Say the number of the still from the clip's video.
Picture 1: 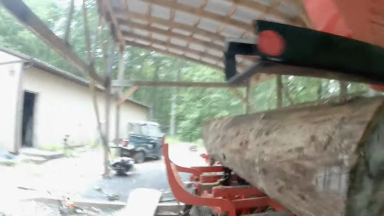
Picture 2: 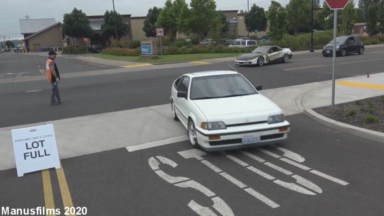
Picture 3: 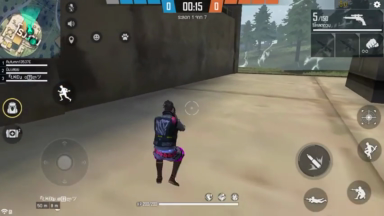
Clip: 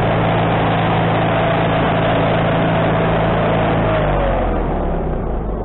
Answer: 1